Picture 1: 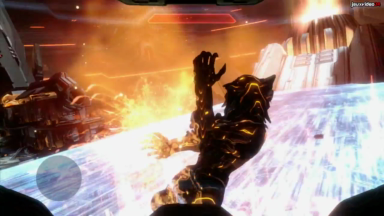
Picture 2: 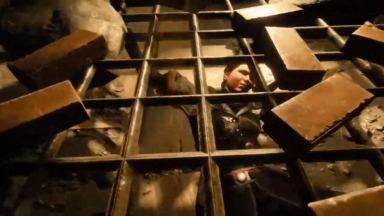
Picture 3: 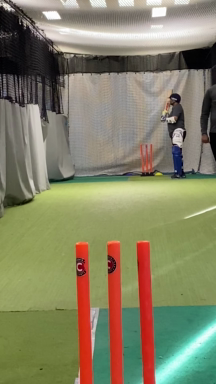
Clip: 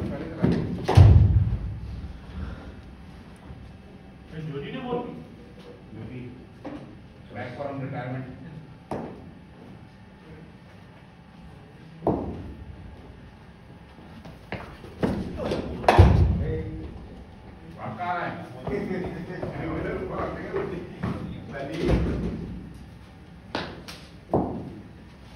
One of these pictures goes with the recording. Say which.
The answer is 3